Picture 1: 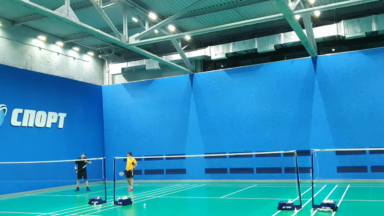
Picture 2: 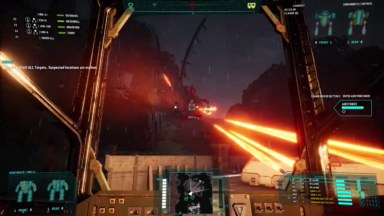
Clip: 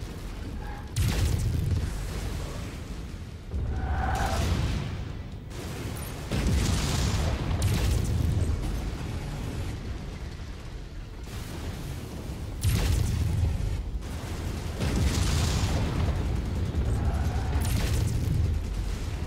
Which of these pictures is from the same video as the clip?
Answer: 2